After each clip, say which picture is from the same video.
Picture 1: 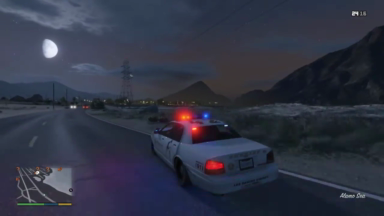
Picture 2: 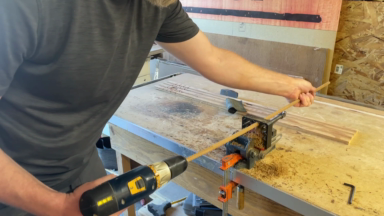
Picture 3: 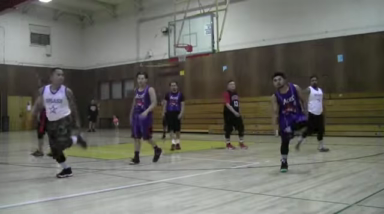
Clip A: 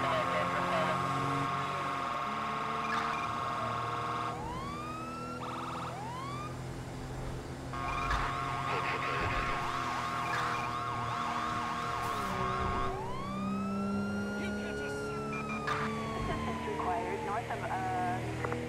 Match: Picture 1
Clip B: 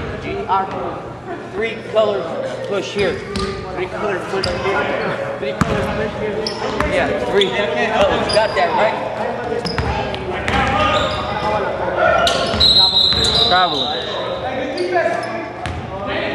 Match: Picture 3